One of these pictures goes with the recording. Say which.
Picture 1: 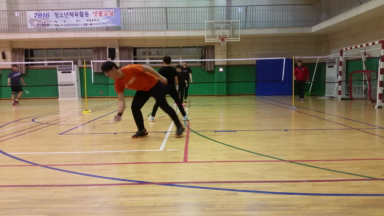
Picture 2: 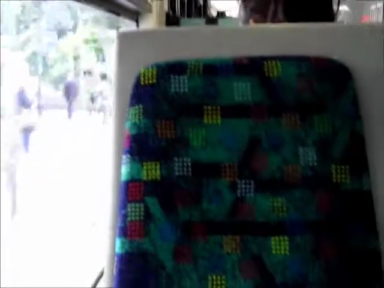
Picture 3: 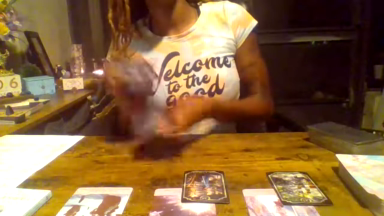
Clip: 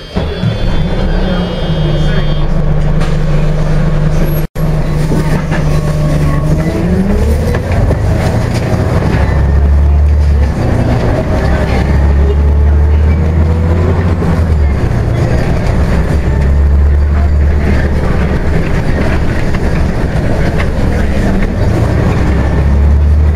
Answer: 2